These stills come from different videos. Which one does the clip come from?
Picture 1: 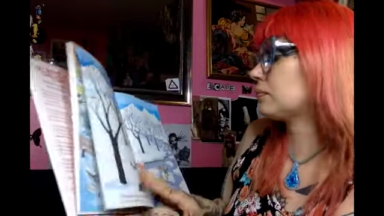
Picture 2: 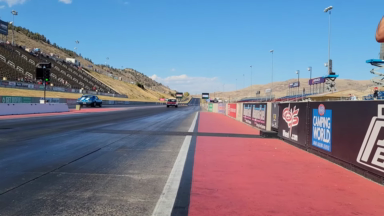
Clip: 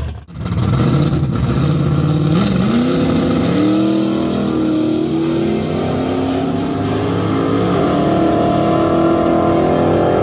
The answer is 2